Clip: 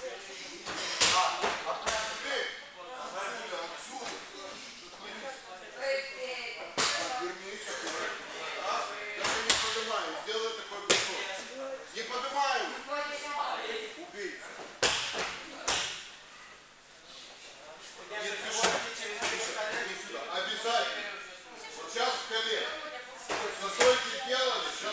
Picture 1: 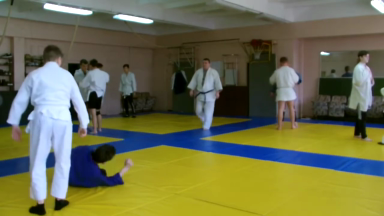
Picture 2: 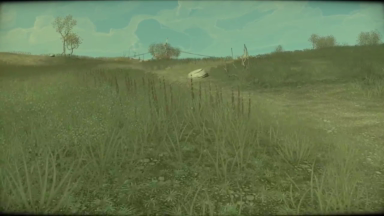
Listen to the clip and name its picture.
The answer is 1